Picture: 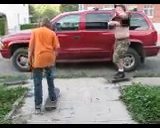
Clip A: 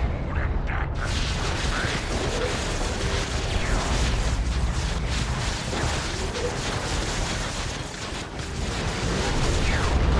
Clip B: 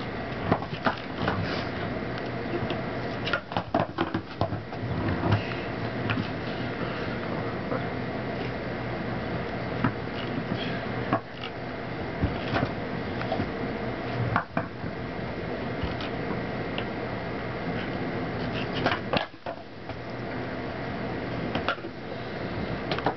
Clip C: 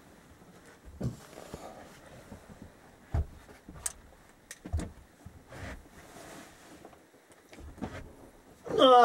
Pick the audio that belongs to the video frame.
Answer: B